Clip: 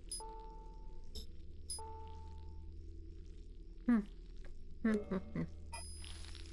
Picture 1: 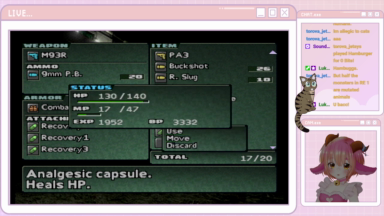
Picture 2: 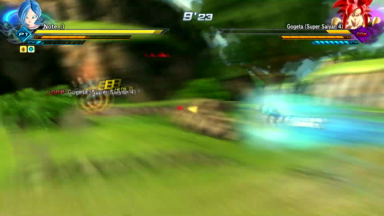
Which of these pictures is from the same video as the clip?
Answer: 1